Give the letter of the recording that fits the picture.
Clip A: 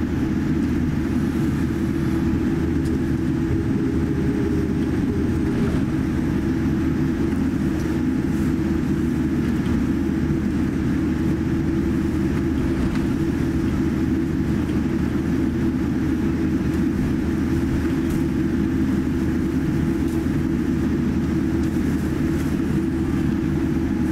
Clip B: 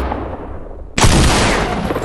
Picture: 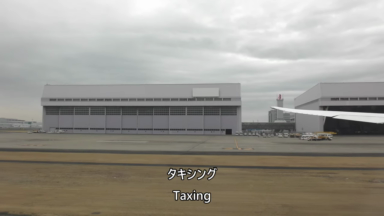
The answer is A